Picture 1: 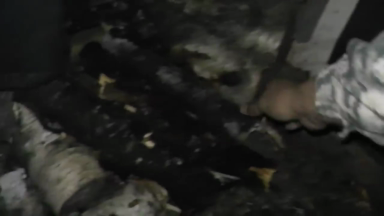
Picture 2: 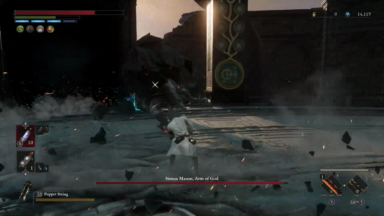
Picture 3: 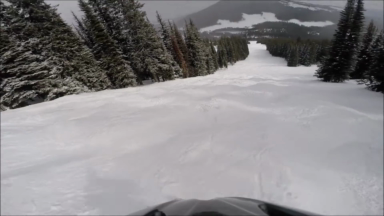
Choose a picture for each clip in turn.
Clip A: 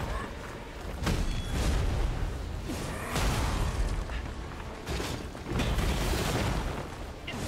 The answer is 2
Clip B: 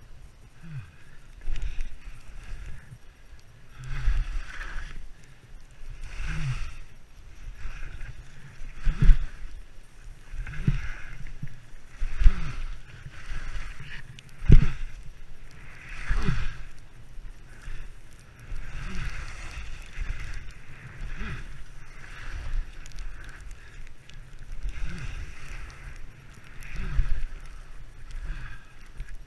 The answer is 3